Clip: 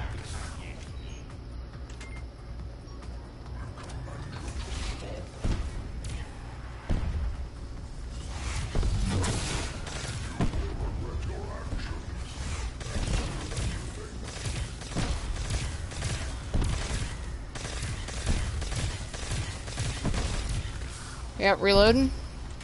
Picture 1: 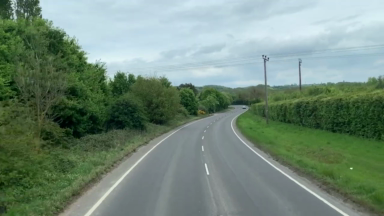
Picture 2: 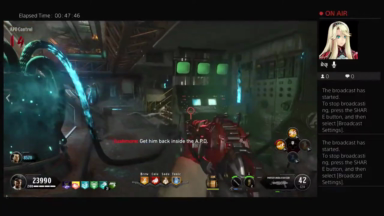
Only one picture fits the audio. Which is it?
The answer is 2